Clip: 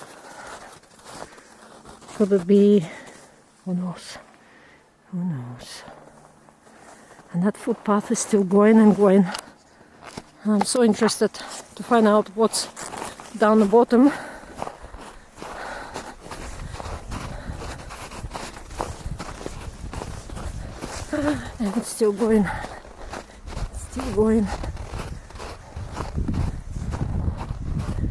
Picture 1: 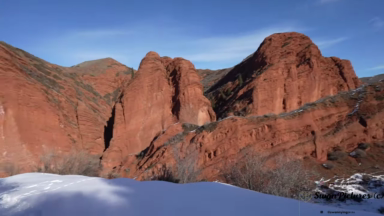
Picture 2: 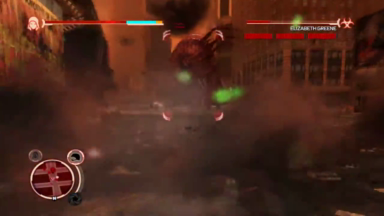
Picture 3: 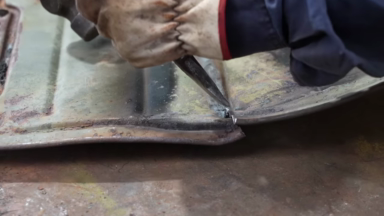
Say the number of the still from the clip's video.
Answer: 1